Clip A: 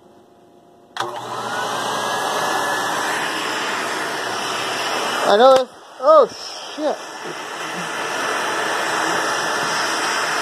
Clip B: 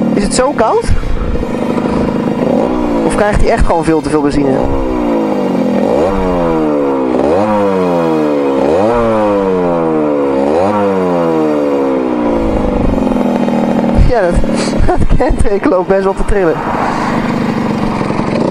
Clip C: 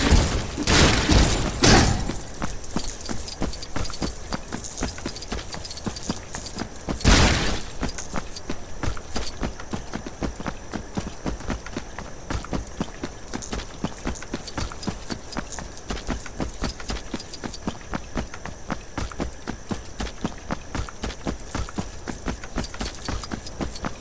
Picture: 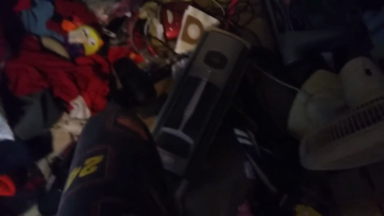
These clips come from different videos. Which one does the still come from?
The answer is A